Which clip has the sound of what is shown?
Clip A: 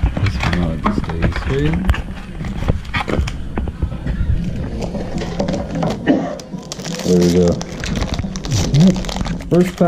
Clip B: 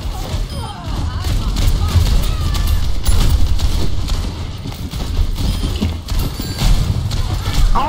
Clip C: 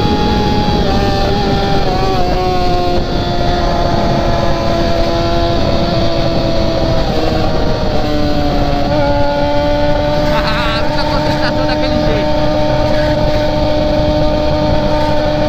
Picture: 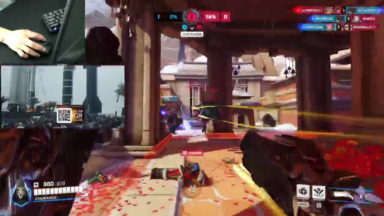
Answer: B